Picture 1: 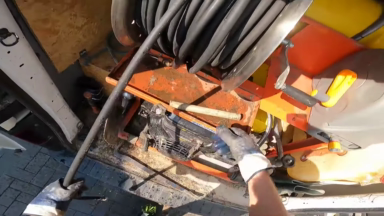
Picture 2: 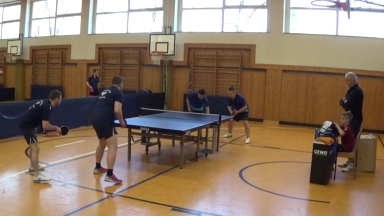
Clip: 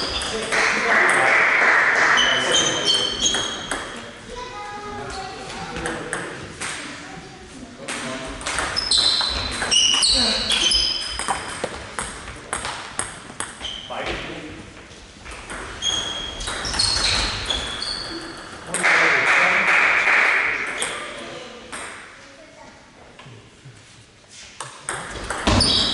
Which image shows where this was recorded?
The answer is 2